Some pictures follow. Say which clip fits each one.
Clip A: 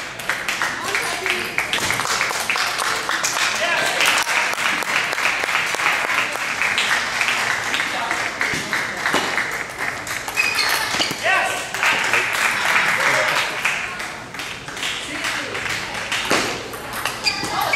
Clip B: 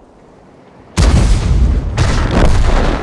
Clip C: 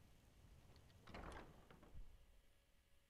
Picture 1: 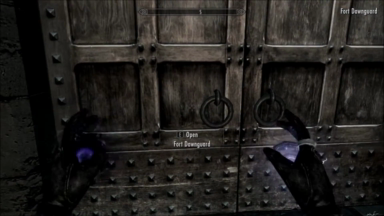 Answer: C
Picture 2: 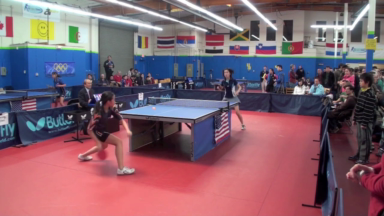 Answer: A